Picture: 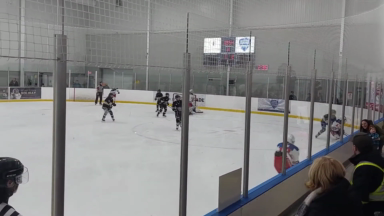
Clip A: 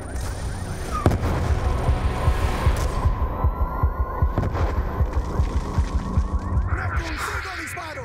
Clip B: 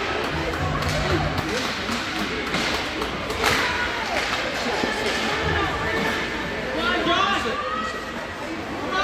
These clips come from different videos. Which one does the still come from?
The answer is B